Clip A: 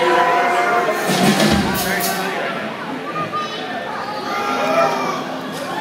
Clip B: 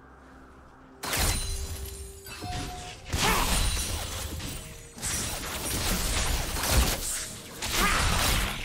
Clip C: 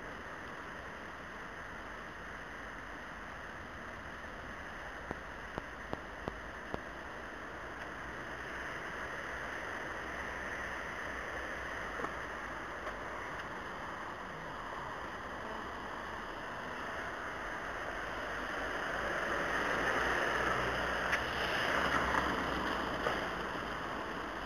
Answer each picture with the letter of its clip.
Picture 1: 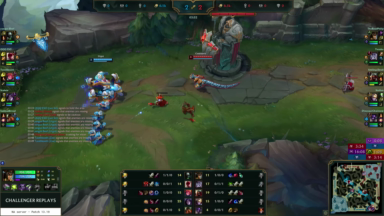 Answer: B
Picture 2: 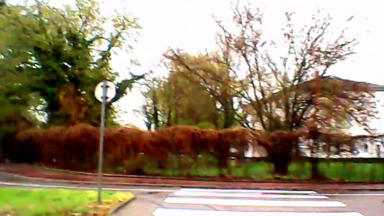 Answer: C